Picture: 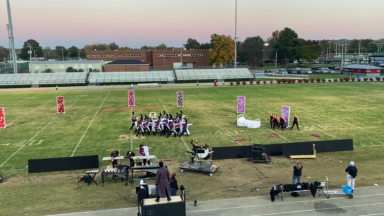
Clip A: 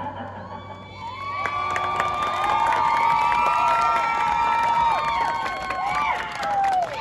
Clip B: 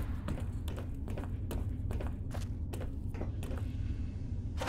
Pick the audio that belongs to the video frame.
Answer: A